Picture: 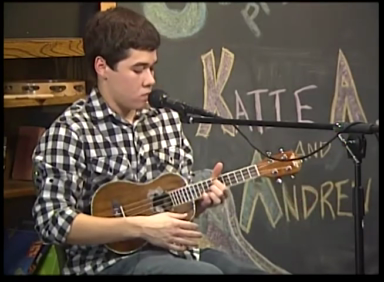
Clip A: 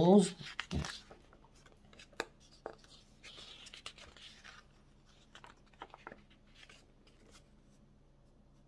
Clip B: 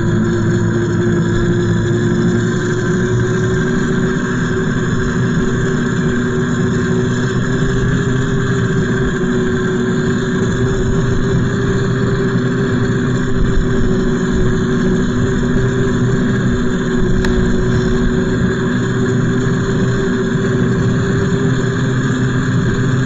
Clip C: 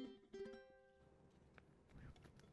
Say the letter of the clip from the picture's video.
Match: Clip C